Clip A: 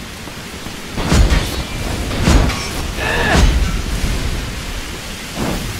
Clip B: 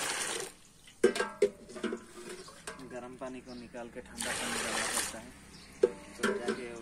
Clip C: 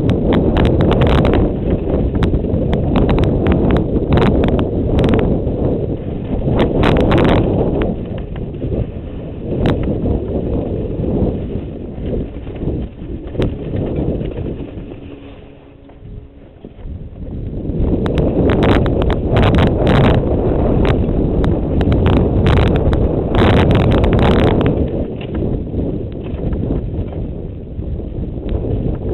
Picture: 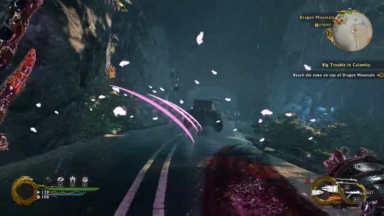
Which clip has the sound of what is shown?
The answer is A